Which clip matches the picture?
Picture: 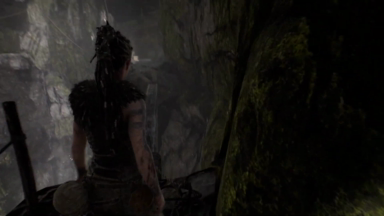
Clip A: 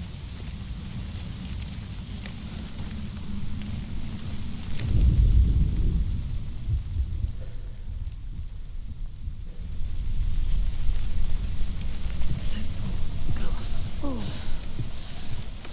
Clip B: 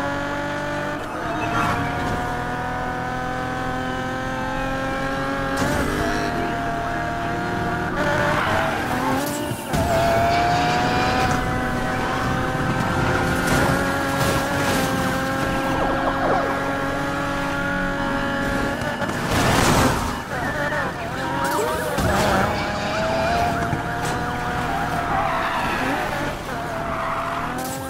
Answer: A